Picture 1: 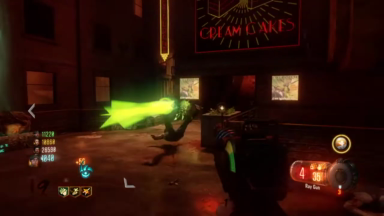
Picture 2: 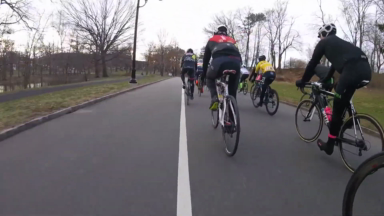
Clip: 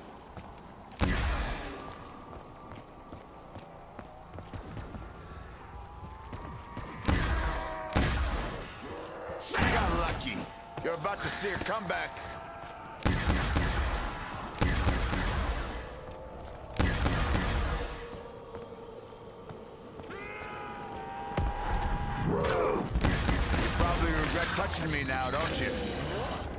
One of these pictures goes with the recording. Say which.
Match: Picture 1